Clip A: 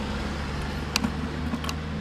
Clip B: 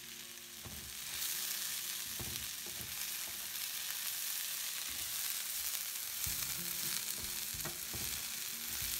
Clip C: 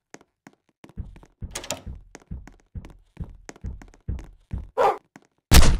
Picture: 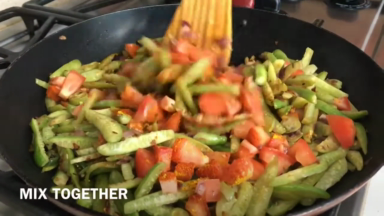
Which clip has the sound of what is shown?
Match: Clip B